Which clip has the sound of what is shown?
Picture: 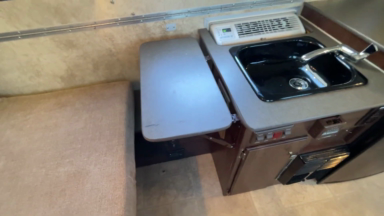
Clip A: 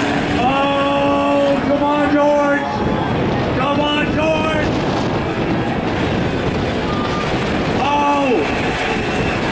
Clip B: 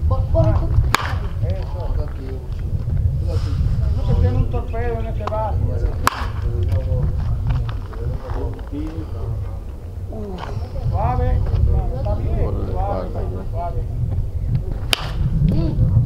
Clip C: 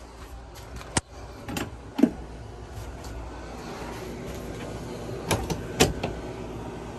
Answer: C